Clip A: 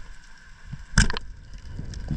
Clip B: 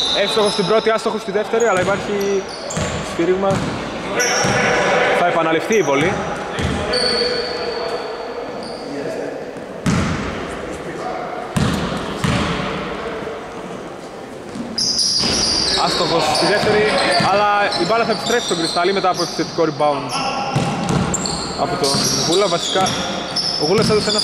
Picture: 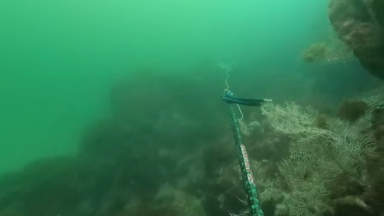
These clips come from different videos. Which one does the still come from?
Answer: A